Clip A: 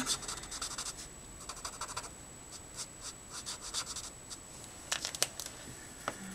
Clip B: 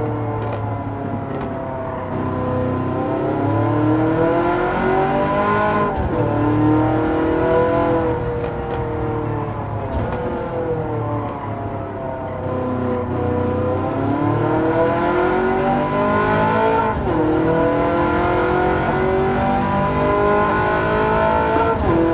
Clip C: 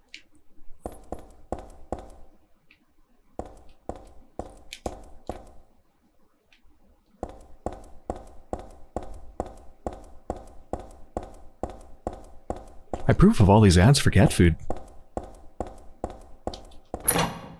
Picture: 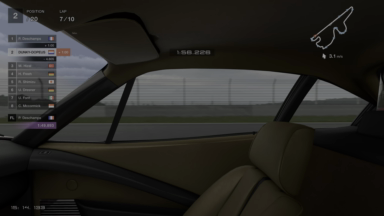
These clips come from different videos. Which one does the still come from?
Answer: B